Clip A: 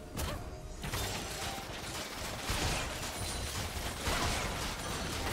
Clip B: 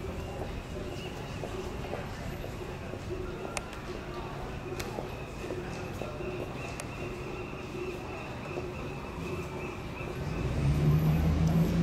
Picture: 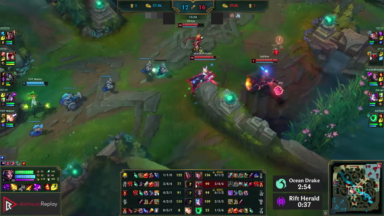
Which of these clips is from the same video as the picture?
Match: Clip A